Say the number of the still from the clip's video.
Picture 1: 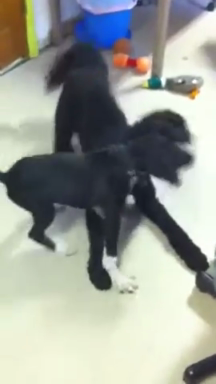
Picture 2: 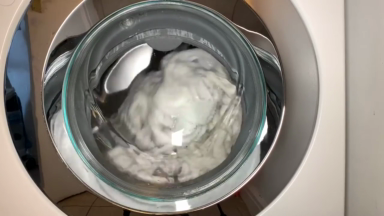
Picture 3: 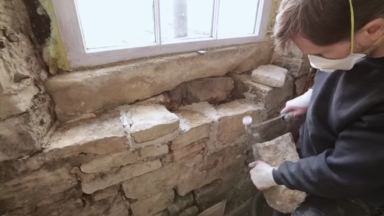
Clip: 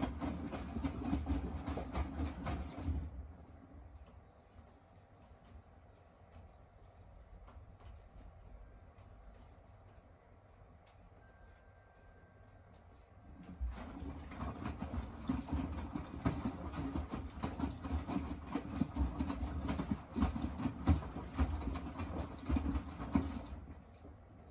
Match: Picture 2